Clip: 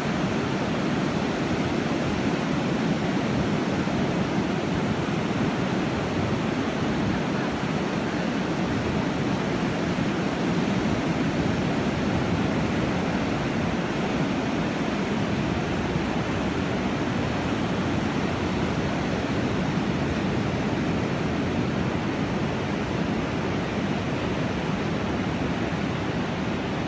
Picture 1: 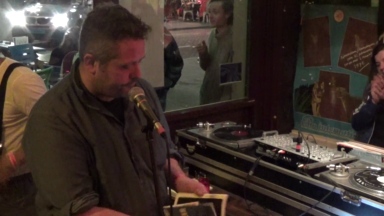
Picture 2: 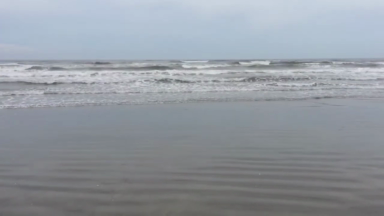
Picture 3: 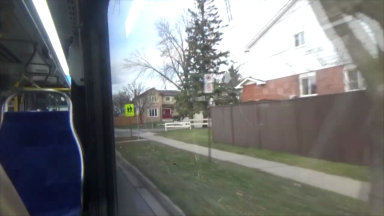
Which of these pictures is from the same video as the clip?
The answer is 2